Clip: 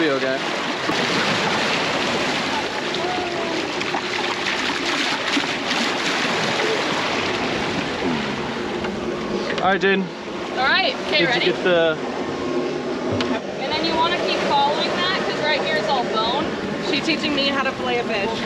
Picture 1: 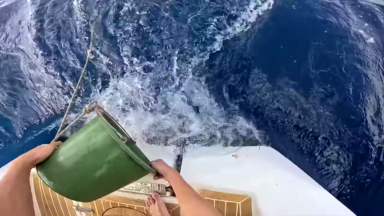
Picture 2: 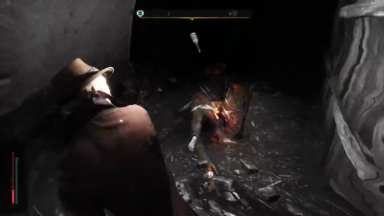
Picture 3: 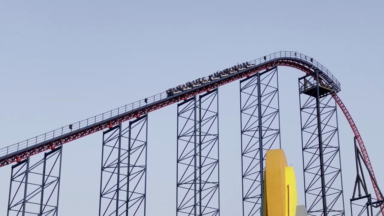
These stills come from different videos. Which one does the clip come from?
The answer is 1